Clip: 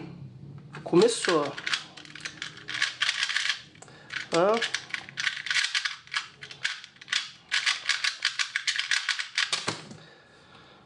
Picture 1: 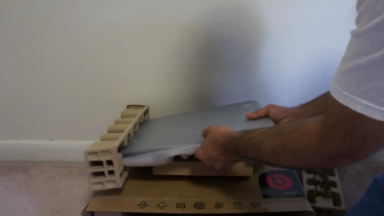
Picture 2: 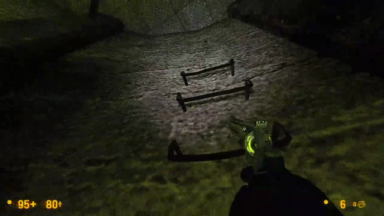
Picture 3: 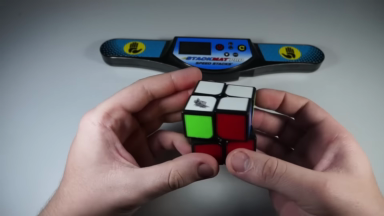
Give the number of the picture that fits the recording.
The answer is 3